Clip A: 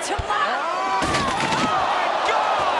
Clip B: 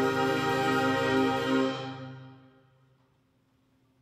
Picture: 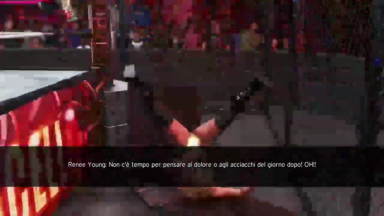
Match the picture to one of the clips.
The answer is A